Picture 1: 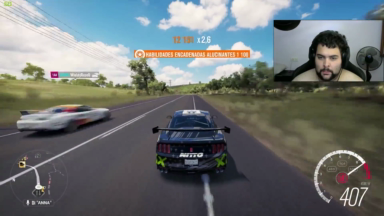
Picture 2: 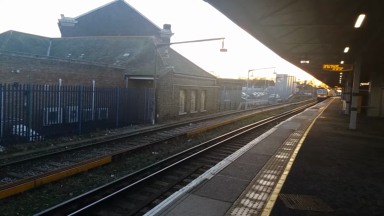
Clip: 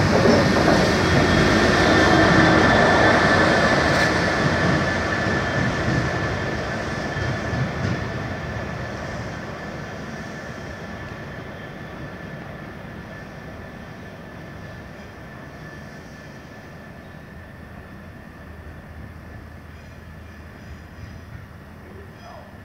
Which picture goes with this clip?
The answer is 2